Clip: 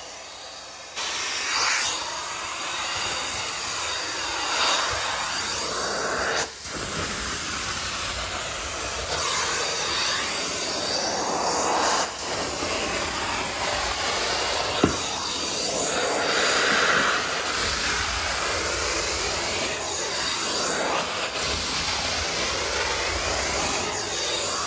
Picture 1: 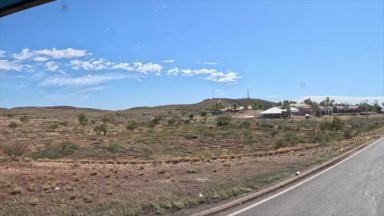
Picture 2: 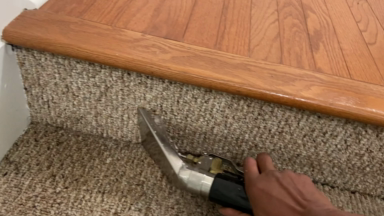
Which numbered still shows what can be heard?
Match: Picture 2